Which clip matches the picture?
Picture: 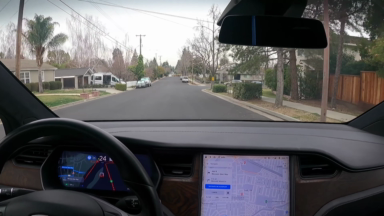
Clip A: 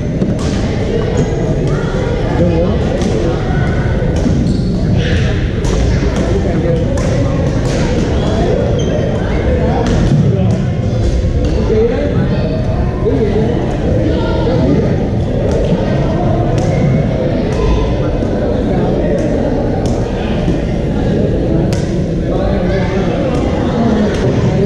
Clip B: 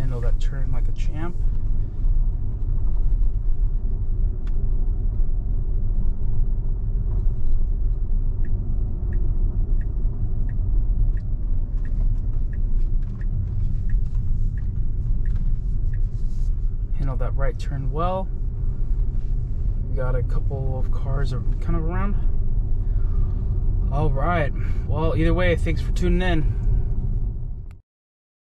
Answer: B